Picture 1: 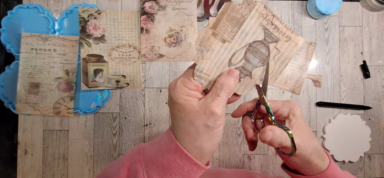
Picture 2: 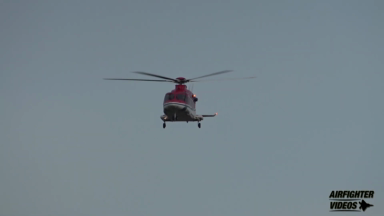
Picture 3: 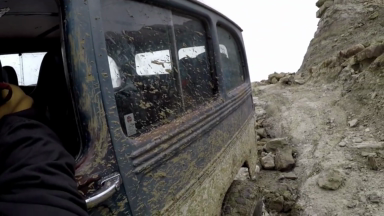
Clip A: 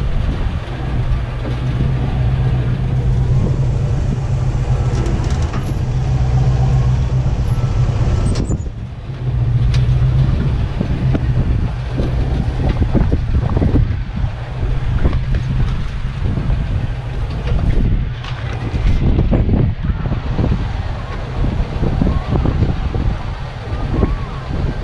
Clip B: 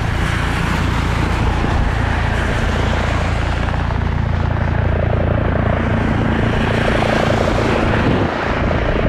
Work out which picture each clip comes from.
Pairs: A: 3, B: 2